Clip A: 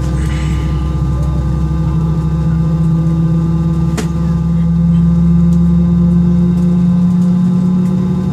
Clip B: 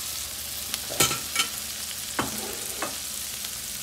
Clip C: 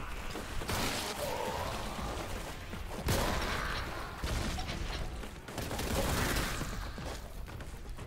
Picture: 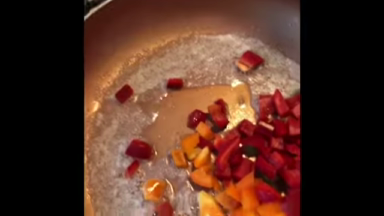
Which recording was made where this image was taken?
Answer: B